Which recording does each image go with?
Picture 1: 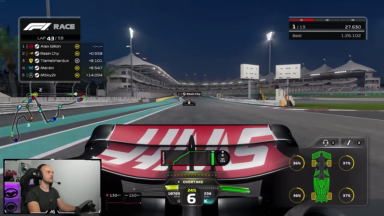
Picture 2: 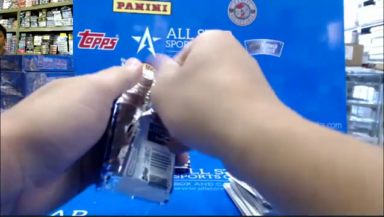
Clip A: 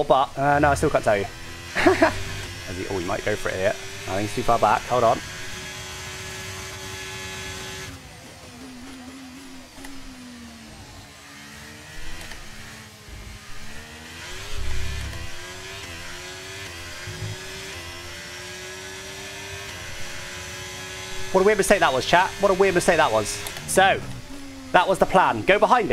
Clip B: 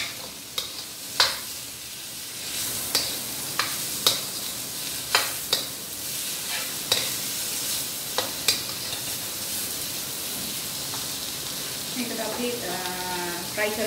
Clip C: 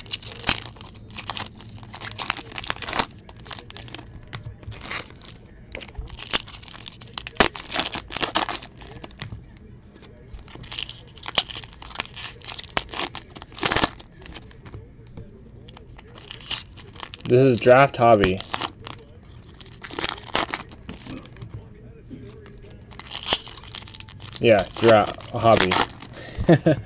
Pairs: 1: A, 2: C